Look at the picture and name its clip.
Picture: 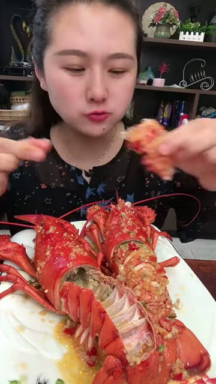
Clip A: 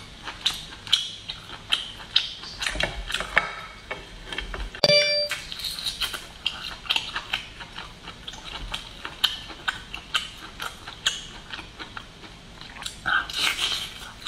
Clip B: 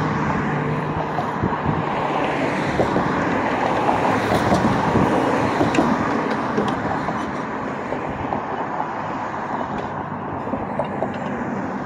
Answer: A